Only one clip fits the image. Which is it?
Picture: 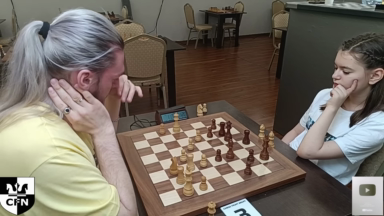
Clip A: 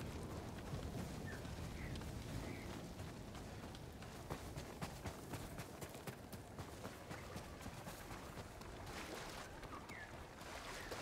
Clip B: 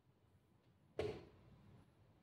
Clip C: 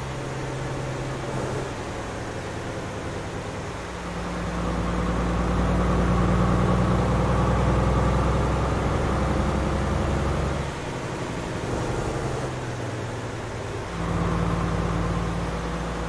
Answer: B